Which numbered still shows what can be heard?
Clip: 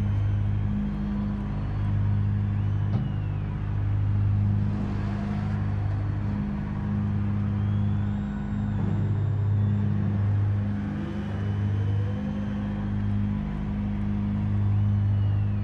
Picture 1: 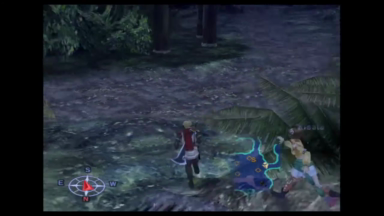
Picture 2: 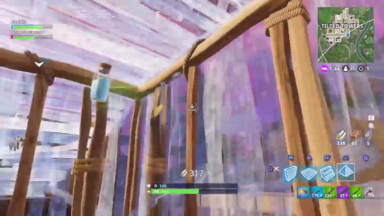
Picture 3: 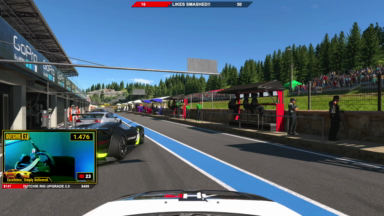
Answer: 3